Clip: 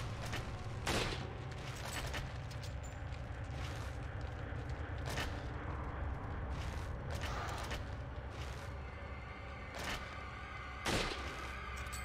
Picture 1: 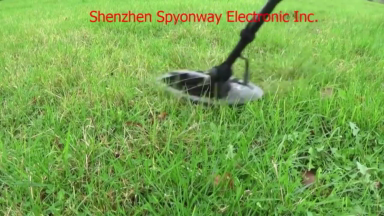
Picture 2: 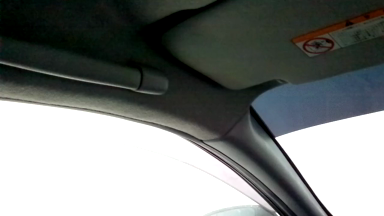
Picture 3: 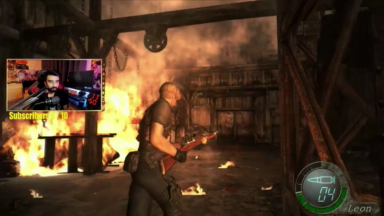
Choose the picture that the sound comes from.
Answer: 3